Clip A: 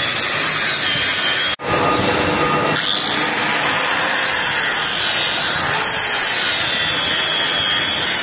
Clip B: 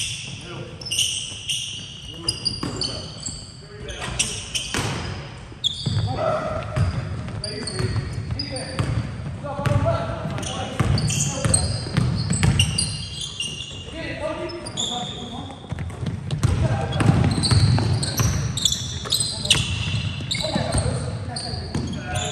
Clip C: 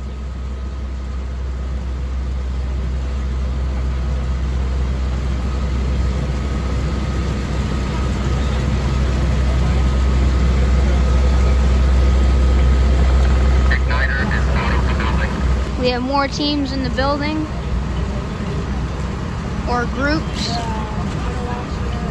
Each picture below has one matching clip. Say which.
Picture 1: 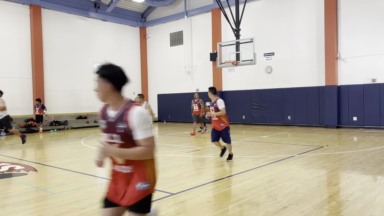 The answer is B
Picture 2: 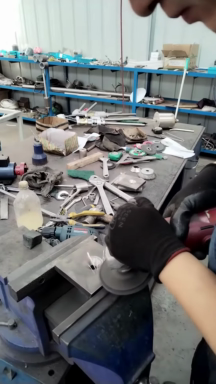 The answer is A